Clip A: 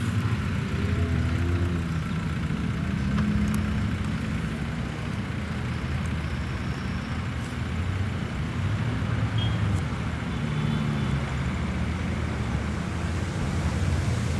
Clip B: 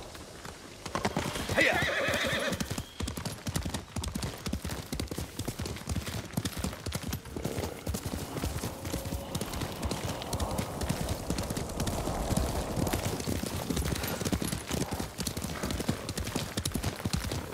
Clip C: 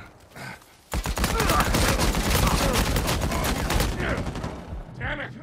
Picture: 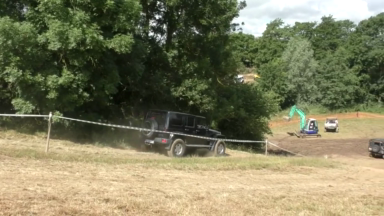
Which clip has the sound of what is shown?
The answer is A